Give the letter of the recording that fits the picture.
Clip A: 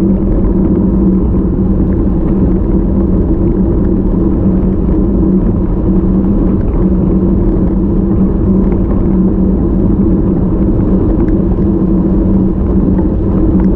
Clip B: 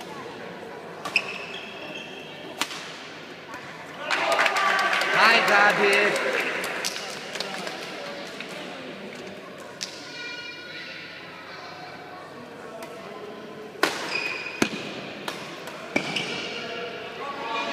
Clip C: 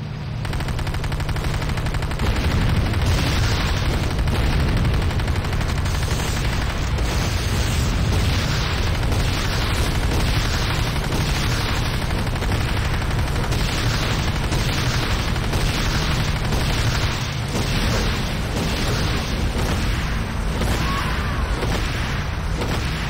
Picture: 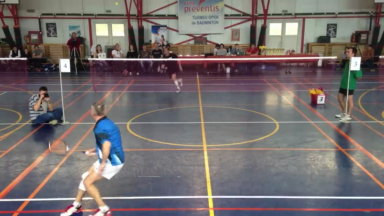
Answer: B